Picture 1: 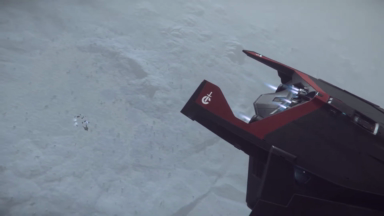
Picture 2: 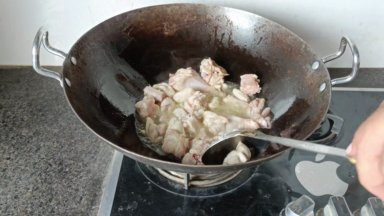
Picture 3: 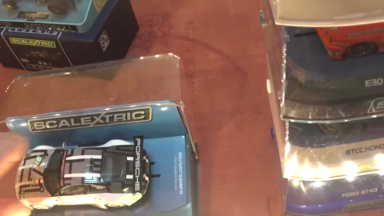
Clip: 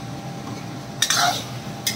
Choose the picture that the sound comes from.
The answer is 2